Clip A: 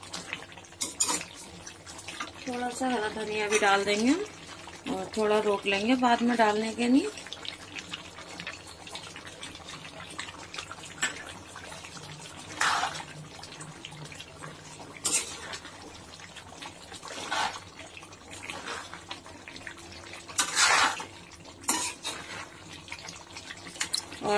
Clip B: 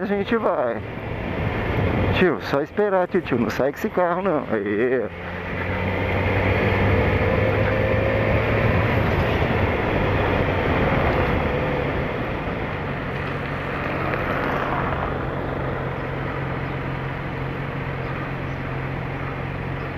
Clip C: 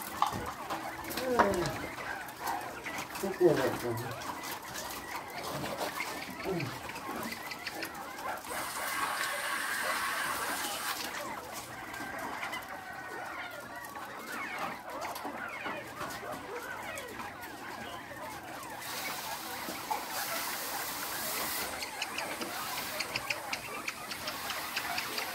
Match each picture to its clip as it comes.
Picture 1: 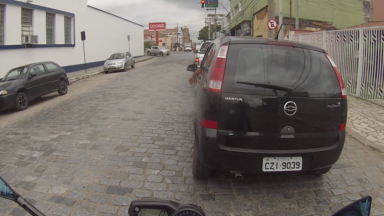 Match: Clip B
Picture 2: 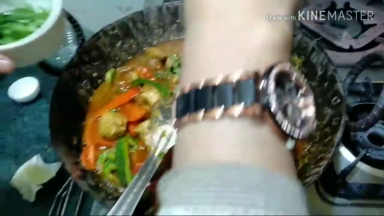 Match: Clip A